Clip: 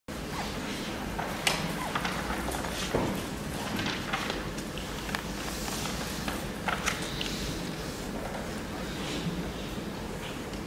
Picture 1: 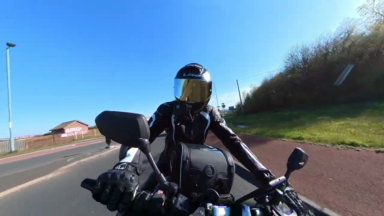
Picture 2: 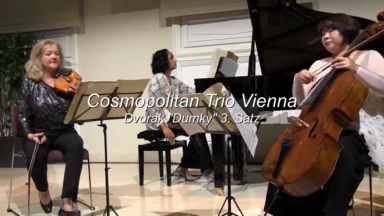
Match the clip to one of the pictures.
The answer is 2